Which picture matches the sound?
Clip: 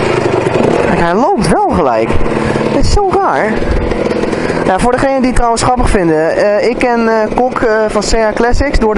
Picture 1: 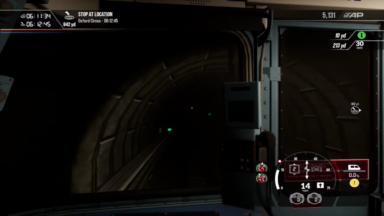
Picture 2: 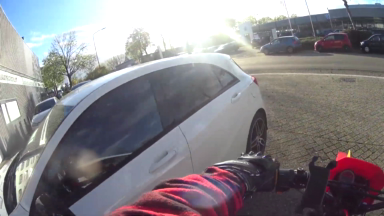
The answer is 2